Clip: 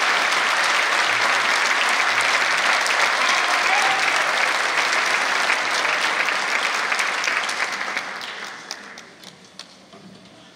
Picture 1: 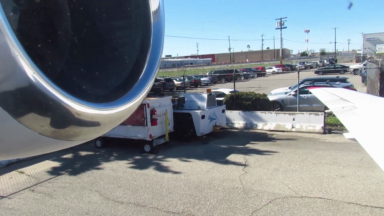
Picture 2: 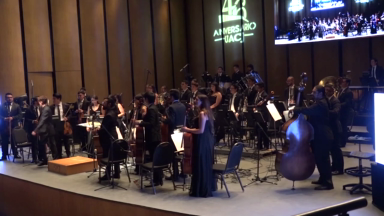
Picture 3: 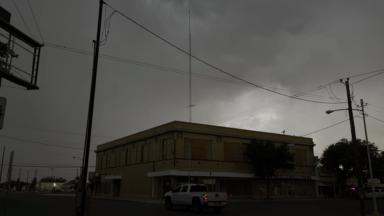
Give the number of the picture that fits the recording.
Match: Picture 2